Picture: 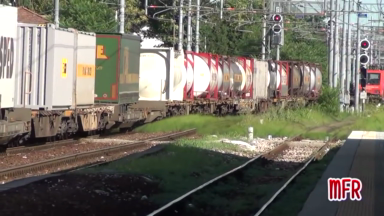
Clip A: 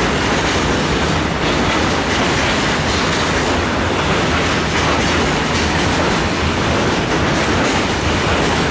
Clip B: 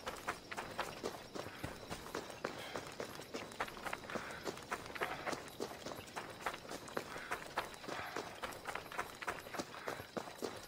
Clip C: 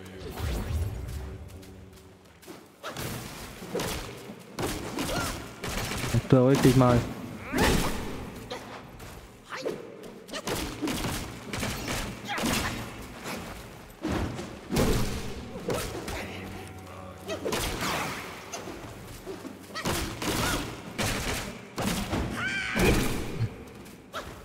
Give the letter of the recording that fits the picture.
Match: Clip A